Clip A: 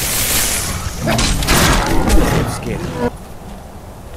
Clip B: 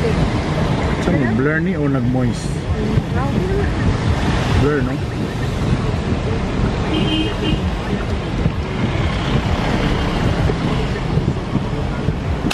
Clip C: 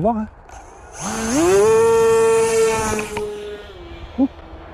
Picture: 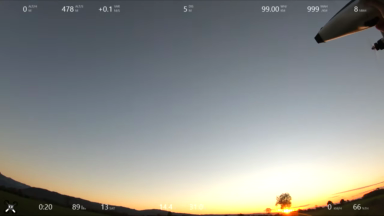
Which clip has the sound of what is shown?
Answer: C